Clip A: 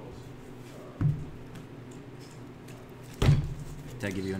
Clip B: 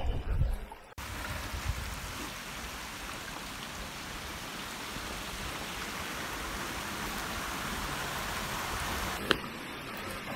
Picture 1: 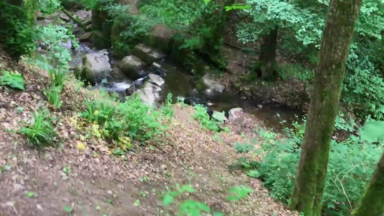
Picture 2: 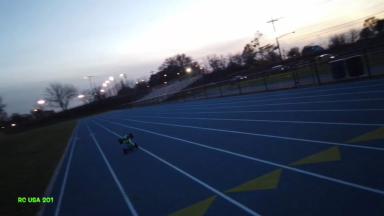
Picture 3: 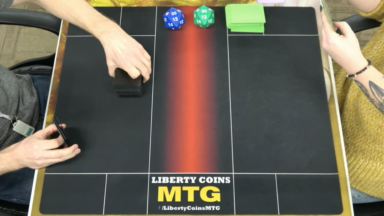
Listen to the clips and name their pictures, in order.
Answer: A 3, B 1